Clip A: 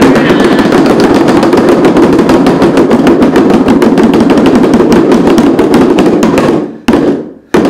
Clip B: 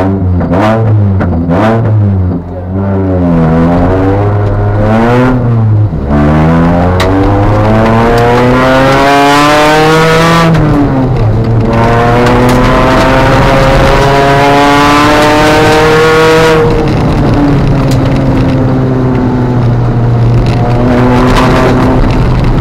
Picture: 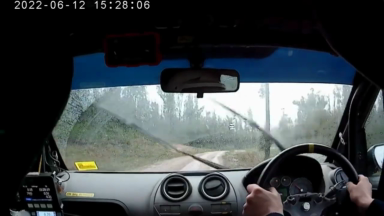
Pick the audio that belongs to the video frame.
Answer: B